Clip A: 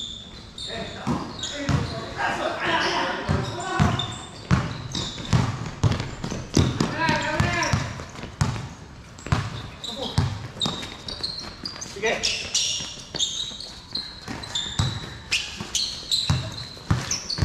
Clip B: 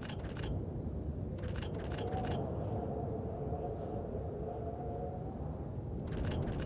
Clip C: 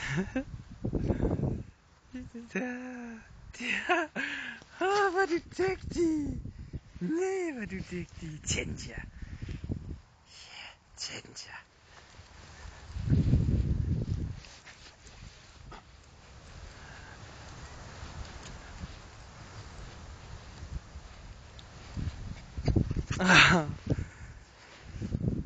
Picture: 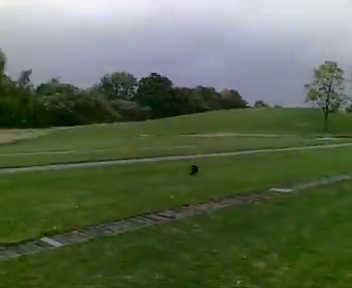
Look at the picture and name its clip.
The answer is C